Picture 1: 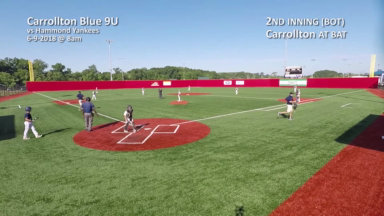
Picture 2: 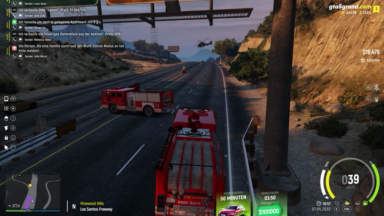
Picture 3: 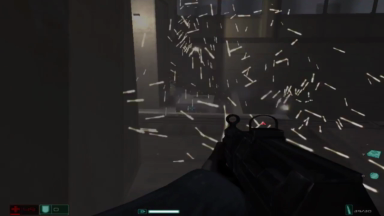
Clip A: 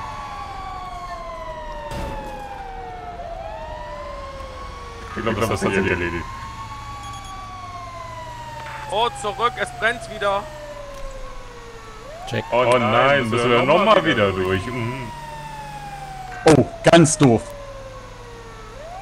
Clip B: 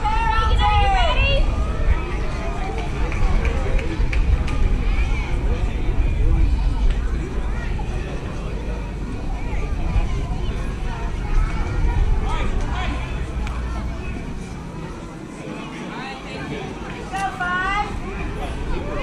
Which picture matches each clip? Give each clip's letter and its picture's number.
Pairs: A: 2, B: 1